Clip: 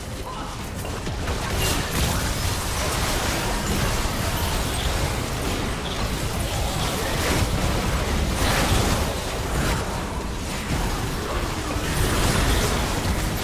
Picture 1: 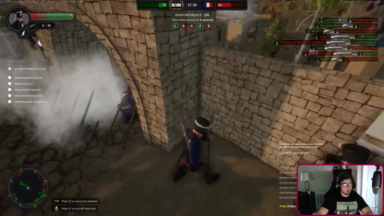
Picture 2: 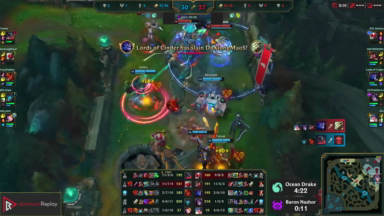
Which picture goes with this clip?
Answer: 2